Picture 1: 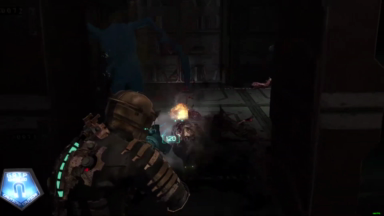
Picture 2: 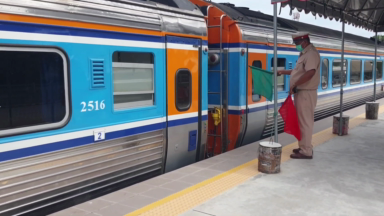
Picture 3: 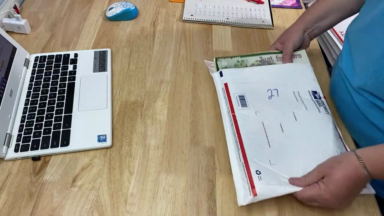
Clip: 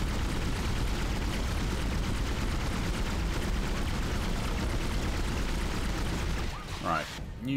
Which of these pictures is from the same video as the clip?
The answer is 1